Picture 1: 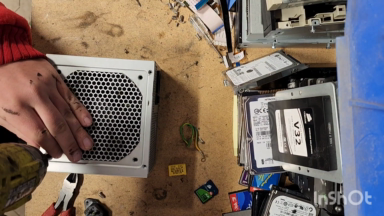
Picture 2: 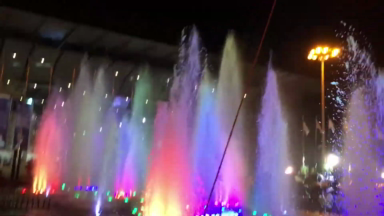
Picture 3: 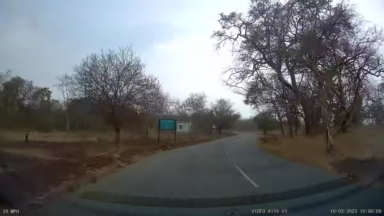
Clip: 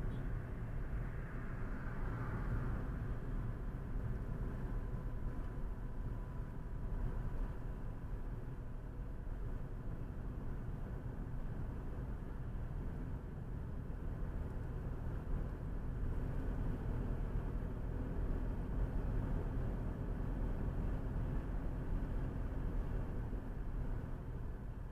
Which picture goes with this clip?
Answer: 3